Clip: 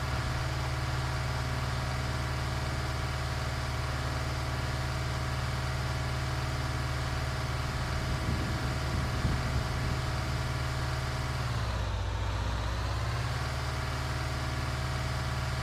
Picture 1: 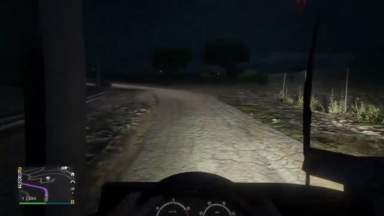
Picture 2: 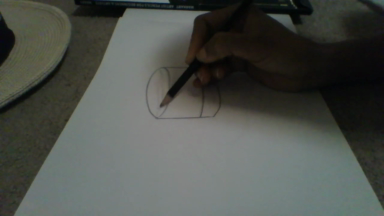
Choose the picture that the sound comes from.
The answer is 1